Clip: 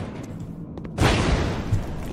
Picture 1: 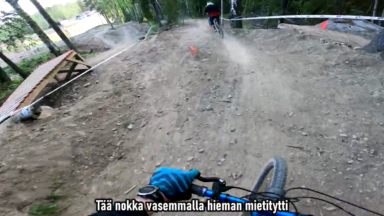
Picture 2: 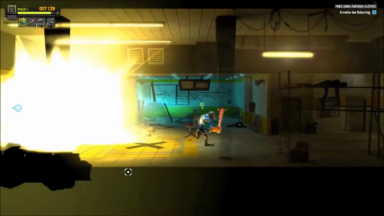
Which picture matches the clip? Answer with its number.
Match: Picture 2